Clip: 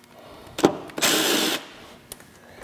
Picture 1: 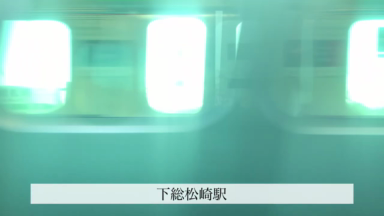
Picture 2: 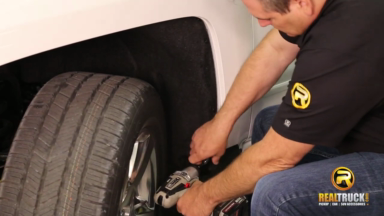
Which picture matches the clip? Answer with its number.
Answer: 2